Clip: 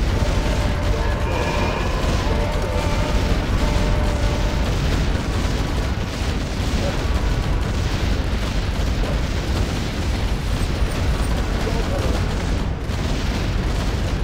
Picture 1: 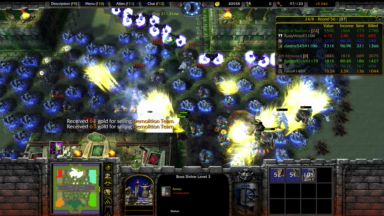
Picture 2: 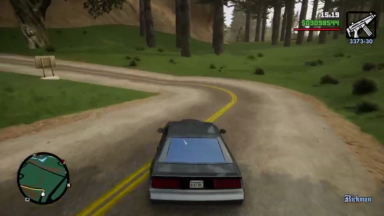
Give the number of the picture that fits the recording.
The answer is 1